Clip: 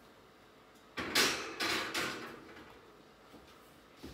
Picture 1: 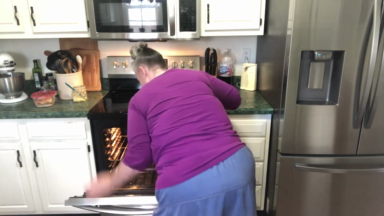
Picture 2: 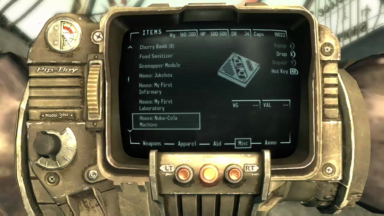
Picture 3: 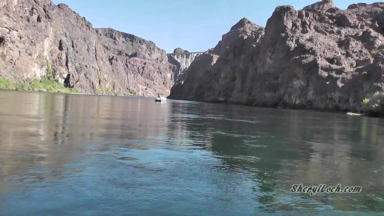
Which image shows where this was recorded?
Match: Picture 1